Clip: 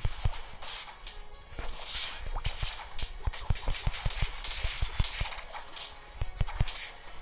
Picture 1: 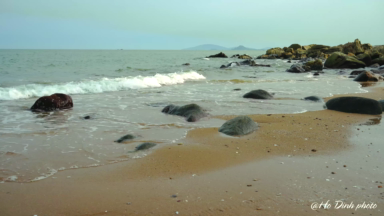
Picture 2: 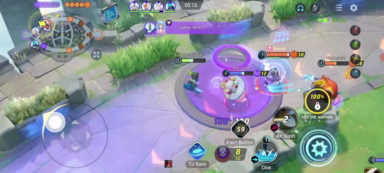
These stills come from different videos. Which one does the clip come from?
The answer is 2